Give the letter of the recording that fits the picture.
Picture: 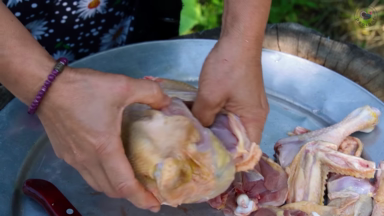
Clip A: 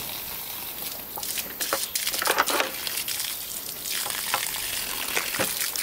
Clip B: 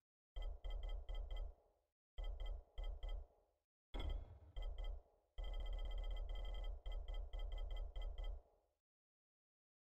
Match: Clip A